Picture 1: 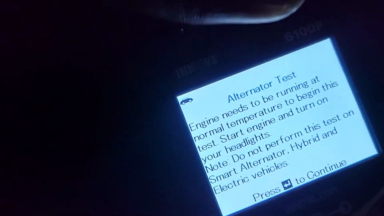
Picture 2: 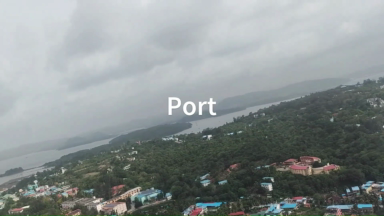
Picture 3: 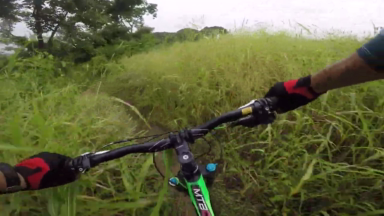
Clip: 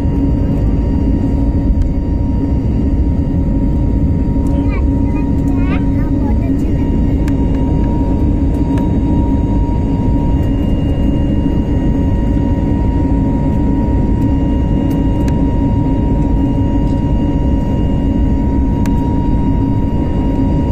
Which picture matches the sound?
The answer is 2